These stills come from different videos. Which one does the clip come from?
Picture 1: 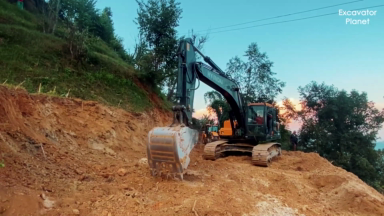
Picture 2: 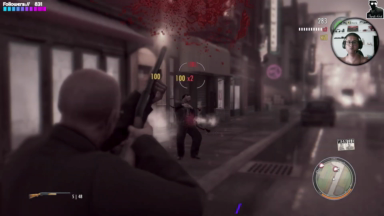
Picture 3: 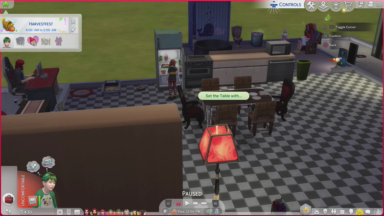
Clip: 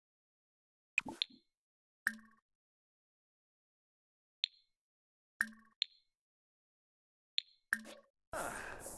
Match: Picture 3